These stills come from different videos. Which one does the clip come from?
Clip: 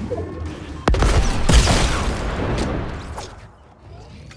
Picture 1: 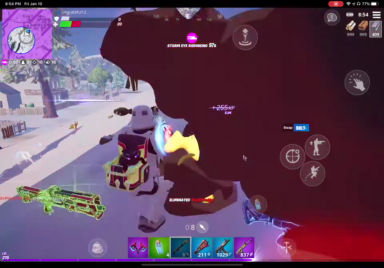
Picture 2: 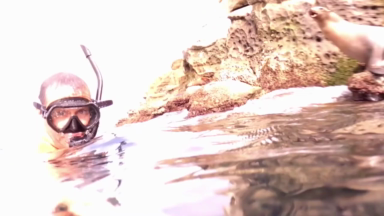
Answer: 1